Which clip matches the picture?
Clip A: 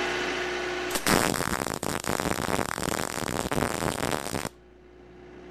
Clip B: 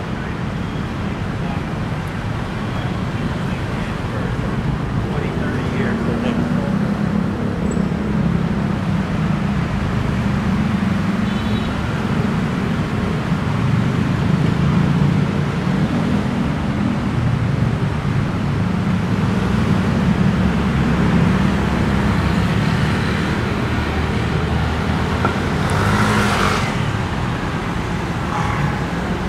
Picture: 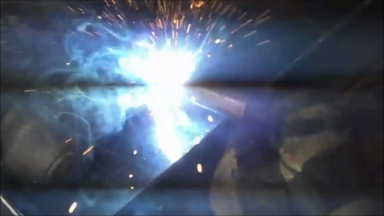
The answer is A